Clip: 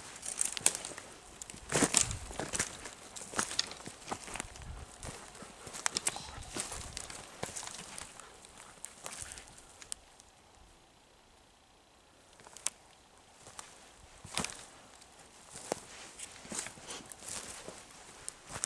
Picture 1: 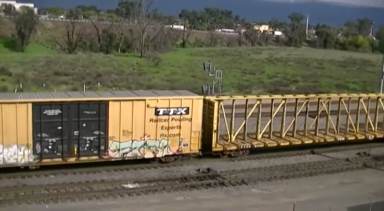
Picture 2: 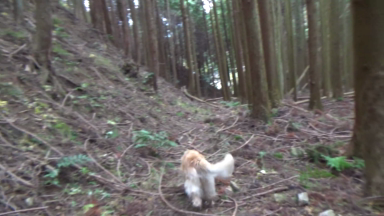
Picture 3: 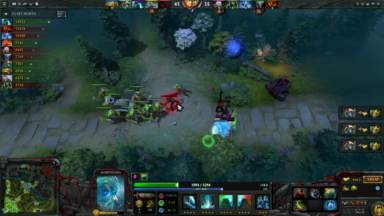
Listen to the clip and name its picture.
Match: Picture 2